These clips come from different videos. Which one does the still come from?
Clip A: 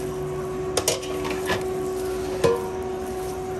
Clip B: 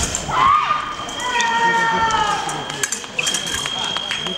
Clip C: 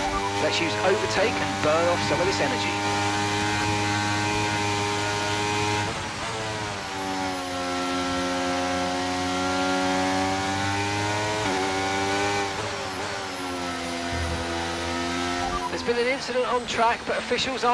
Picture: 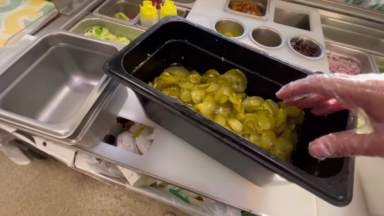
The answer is A